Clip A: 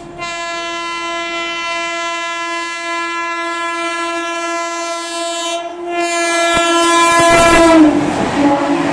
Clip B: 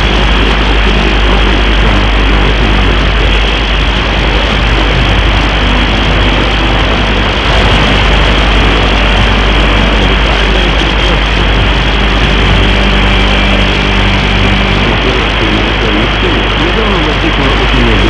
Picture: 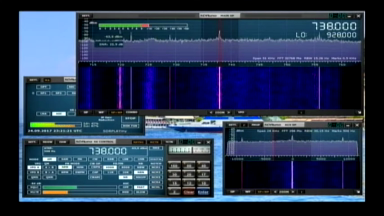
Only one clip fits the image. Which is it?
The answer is B